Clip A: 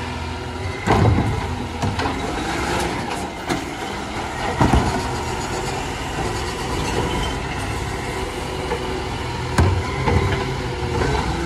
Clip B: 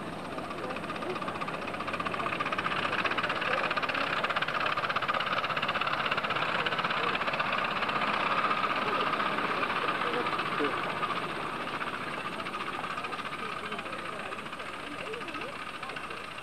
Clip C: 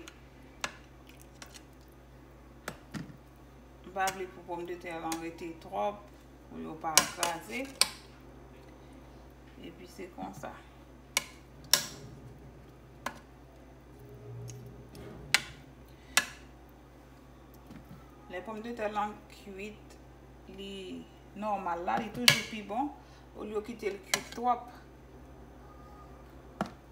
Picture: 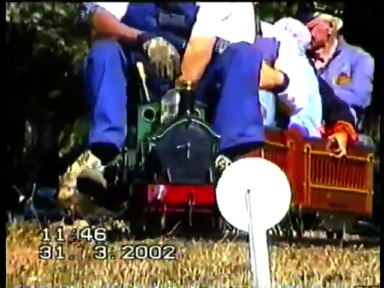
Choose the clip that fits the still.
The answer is B